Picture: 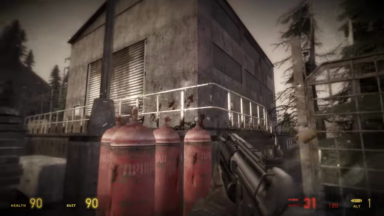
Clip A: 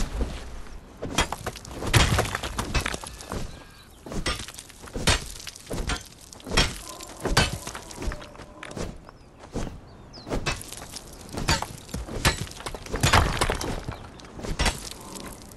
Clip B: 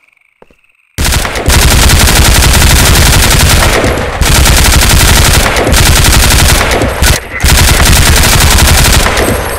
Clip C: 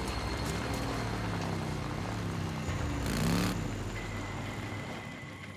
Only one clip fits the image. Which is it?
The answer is B